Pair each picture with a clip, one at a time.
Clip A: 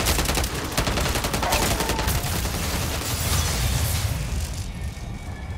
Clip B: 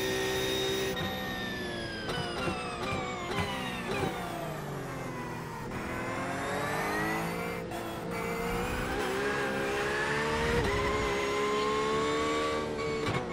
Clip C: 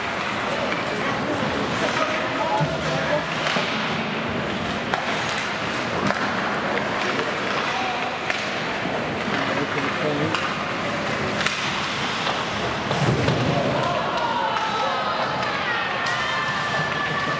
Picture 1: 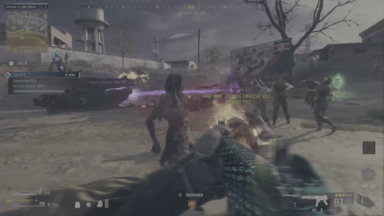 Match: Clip A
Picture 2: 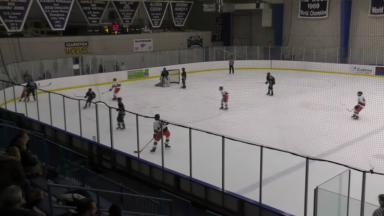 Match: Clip C